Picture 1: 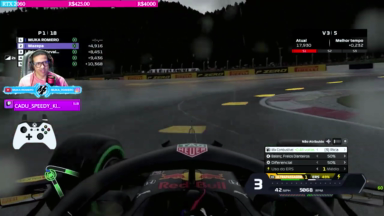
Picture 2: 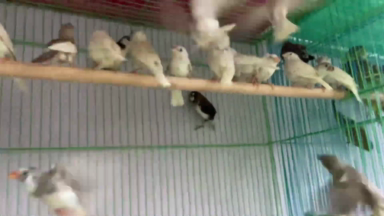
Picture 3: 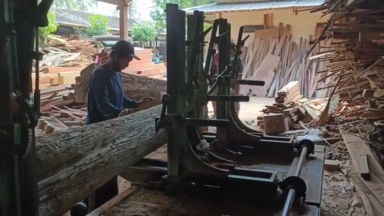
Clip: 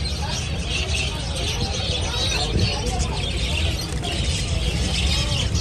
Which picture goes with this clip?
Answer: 2